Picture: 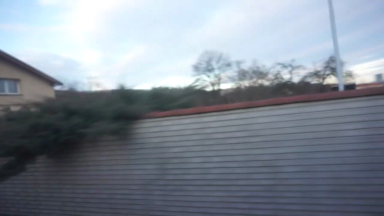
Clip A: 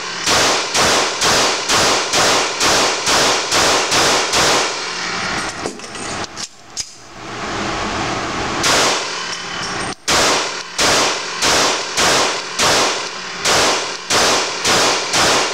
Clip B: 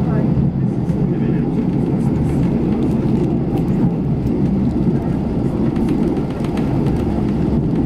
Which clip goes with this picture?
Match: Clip B